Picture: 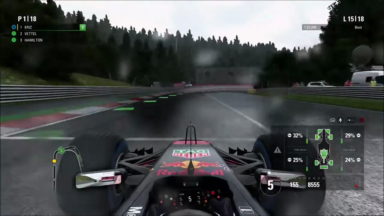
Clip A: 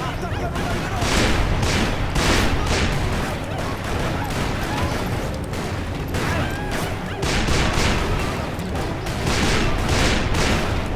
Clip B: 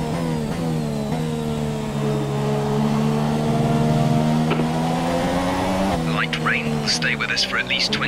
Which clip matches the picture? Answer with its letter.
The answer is B